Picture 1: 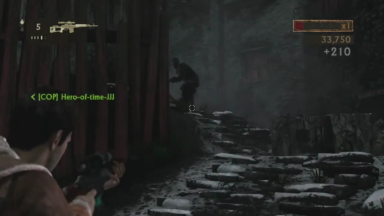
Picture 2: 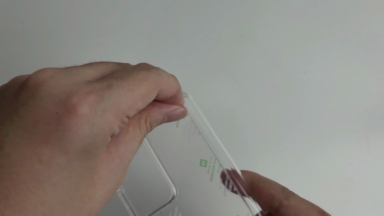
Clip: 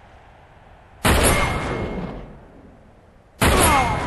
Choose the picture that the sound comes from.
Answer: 1